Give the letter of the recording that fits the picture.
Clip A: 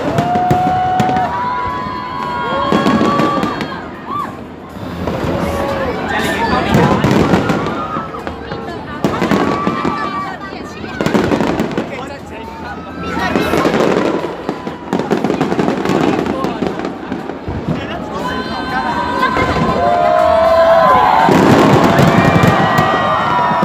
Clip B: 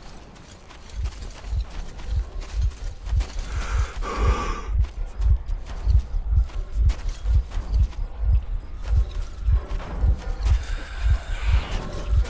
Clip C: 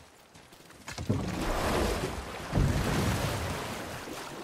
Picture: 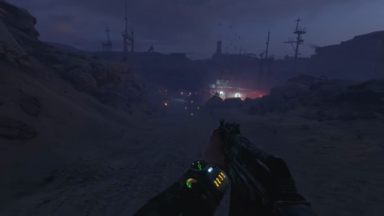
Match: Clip B